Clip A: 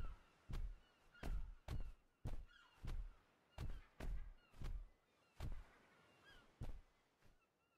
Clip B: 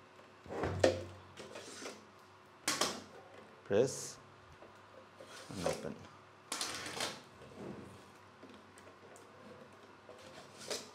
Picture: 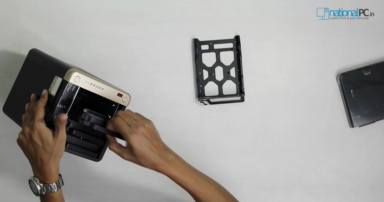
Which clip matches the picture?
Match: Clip B